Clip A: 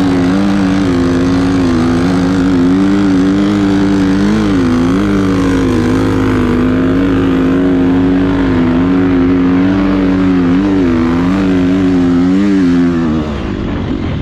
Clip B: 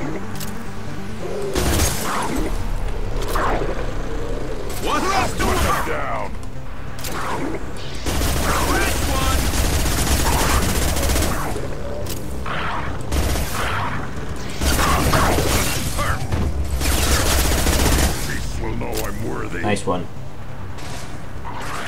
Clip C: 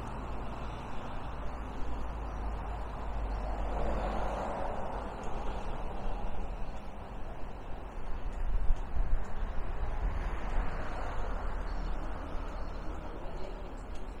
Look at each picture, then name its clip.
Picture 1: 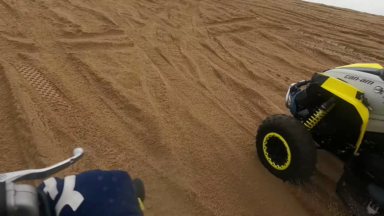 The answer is A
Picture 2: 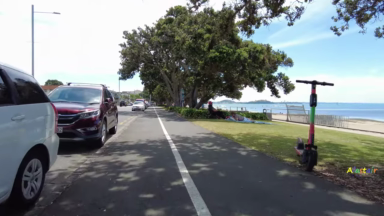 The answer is C